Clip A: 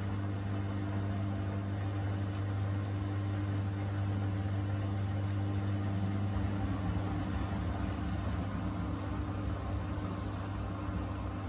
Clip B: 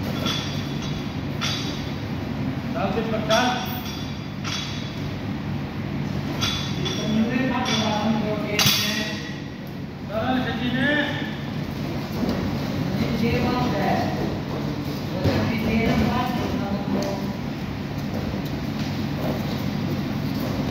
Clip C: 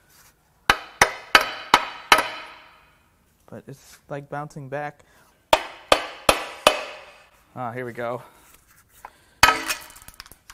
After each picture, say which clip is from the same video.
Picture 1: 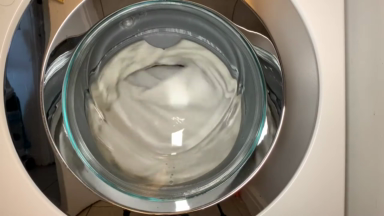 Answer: A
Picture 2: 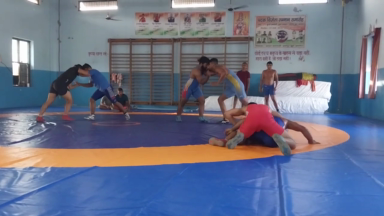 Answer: B